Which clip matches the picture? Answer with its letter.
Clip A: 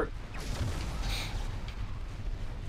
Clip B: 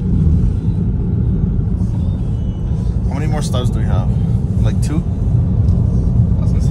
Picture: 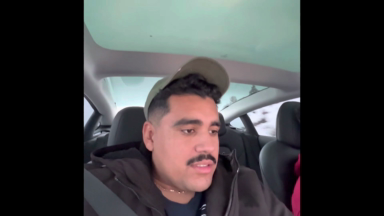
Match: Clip B